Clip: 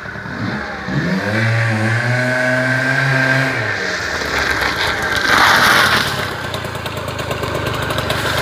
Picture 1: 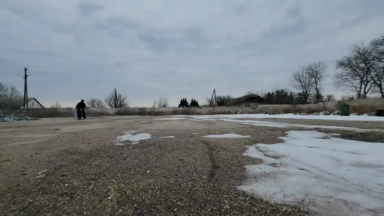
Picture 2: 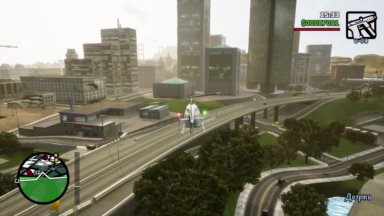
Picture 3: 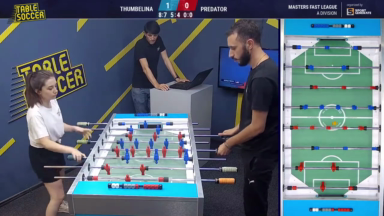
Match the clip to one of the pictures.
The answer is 1